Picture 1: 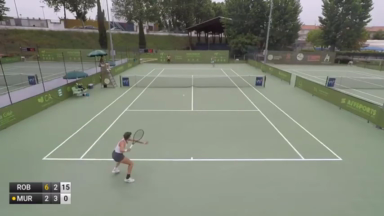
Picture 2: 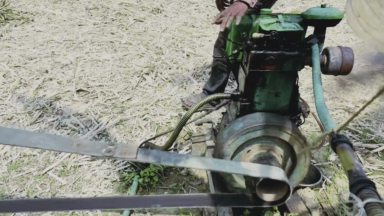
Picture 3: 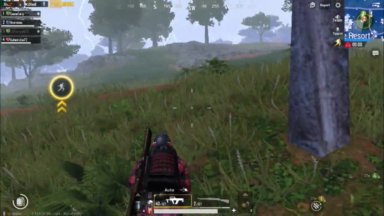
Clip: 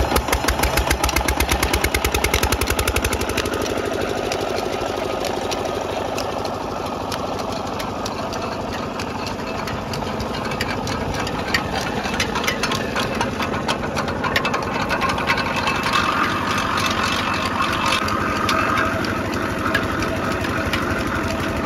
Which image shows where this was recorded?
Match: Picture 2